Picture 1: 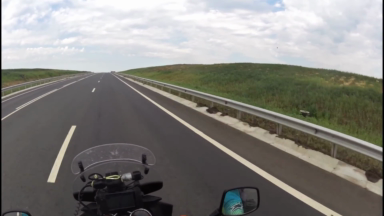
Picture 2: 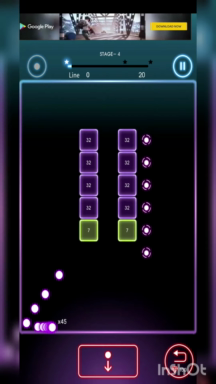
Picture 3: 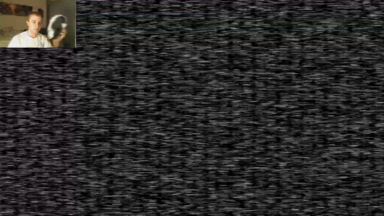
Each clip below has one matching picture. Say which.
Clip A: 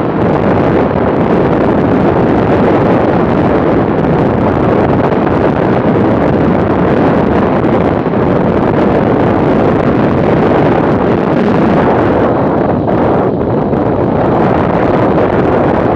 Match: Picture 1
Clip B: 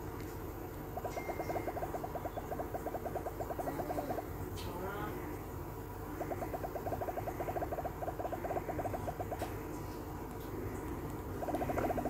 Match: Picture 2